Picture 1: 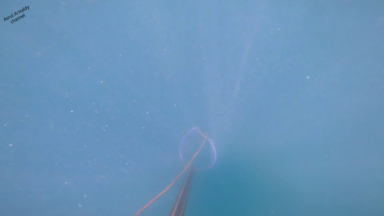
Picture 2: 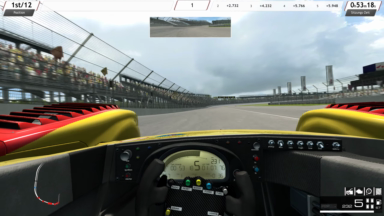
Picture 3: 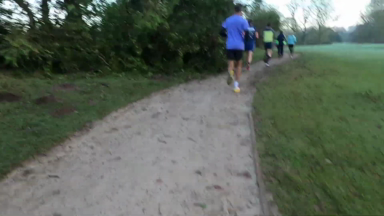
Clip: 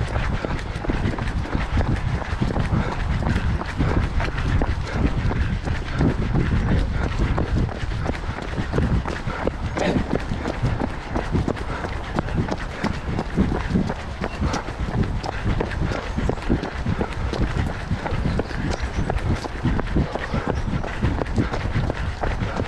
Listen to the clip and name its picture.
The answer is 3